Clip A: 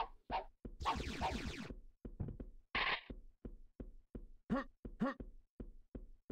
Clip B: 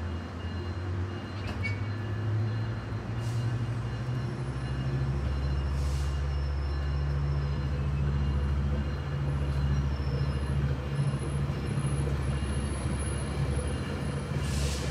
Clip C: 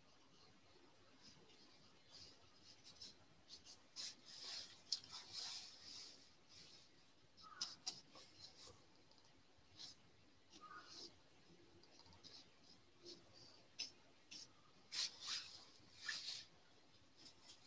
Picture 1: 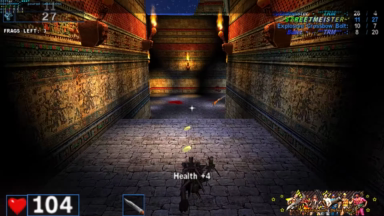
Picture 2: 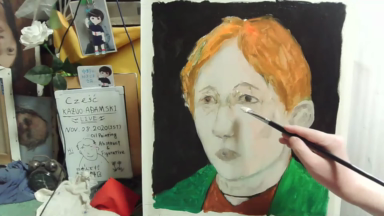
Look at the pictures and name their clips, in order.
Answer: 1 A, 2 C